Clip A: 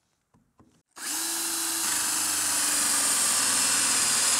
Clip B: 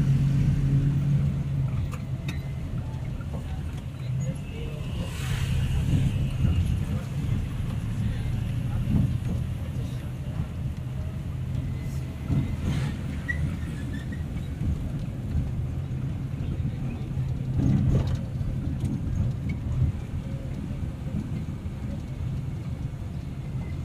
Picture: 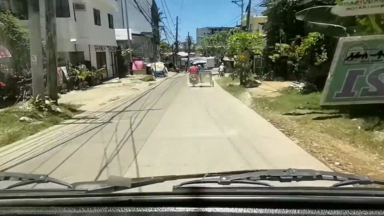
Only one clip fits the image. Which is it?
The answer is B